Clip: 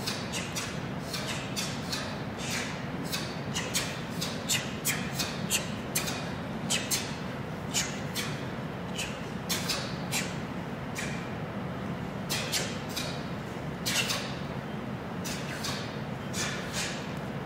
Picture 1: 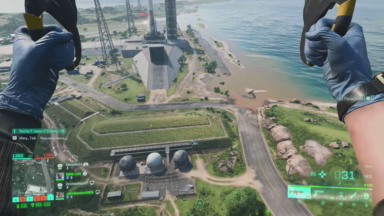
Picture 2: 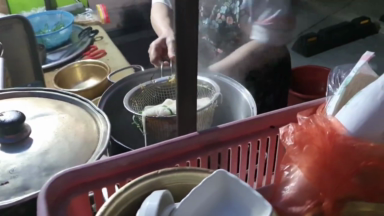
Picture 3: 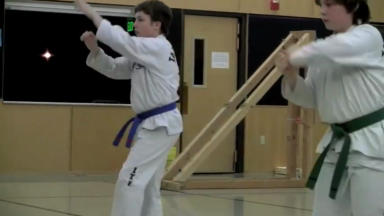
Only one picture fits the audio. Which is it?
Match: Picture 3